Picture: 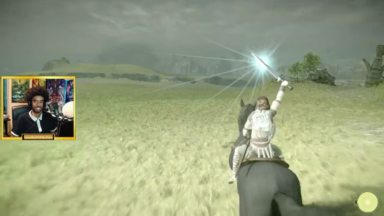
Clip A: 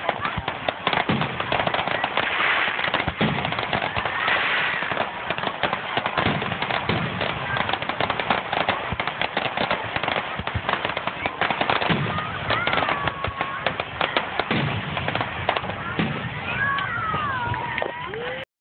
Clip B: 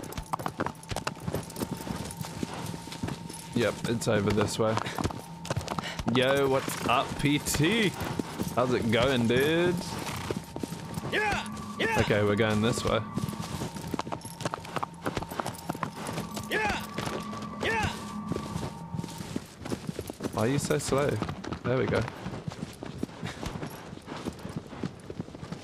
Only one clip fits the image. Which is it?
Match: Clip B